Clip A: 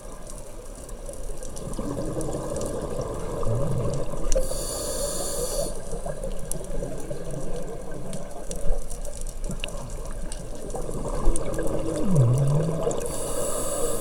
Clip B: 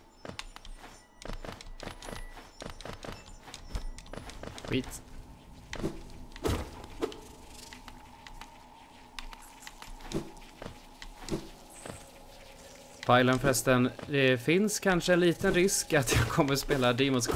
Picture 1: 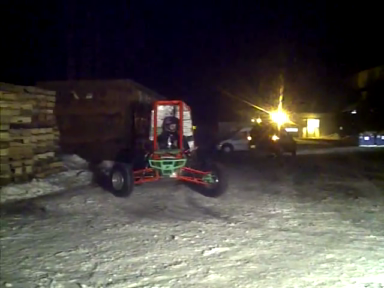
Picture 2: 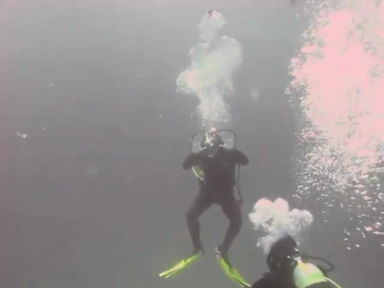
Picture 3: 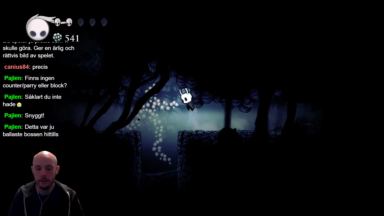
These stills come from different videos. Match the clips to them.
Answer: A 2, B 3